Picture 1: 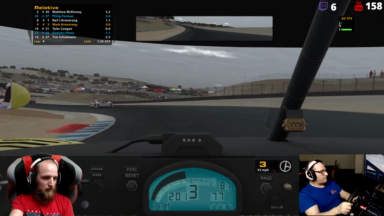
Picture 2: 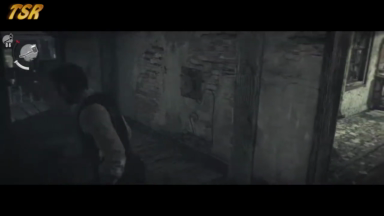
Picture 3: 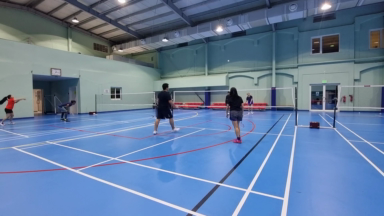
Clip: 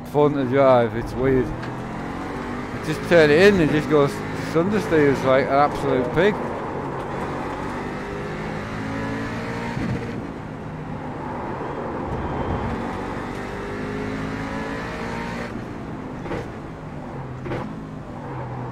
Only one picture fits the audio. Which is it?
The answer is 1